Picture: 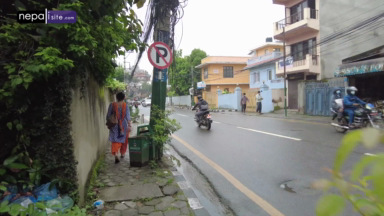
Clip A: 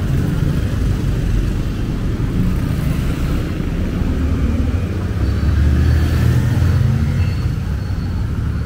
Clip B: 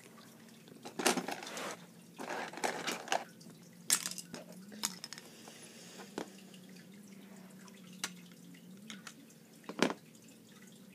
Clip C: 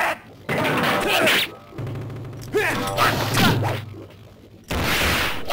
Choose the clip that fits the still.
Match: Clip A